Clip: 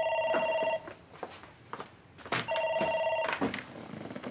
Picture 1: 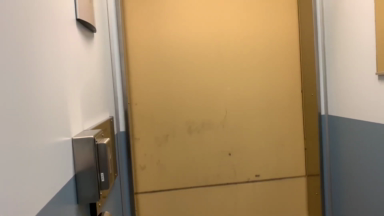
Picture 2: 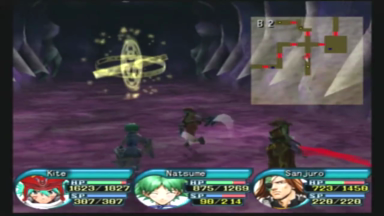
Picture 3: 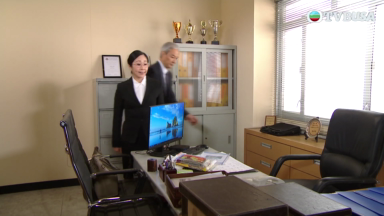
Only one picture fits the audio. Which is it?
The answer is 3